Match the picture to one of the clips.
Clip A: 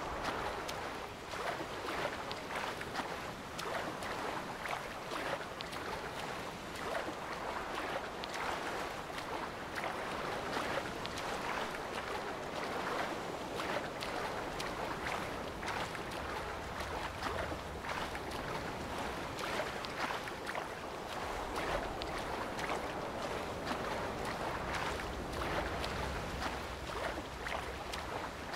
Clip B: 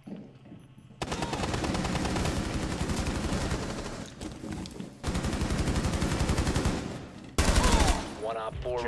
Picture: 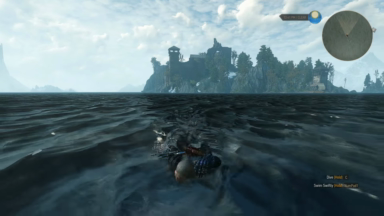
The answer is A